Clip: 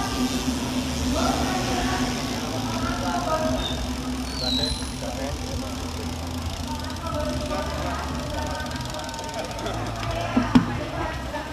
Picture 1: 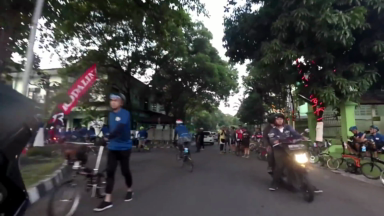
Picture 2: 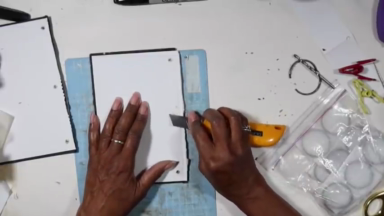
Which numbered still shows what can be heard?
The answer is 1